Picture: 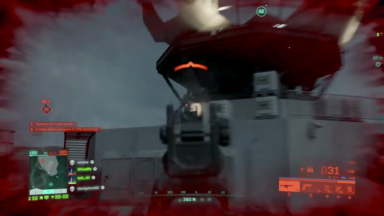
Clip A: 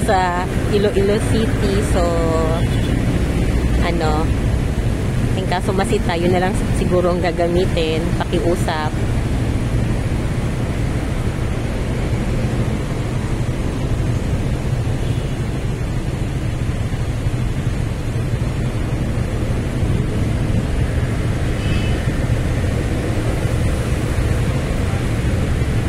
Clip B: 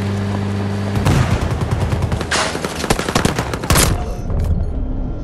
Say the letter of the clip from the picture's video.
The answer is B